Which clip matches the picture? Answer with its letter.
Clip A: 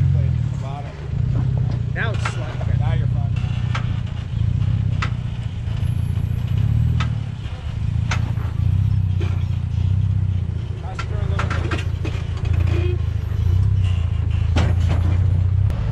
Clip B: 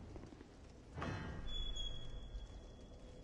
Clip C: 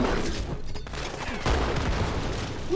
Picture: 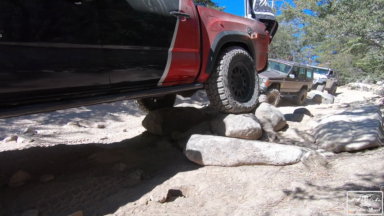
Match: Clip A